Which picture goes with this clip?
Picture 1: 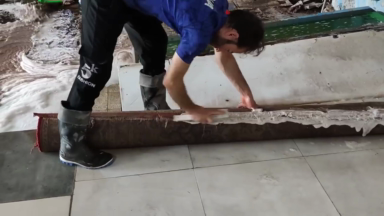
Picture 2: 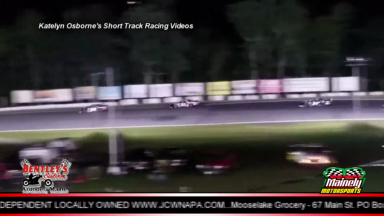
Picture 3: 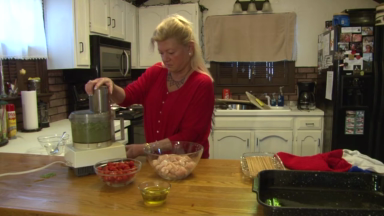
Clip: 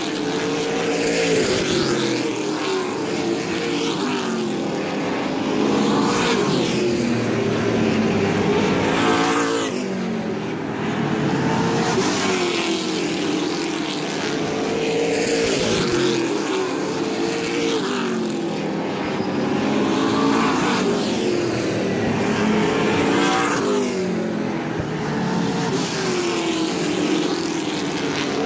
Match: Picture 2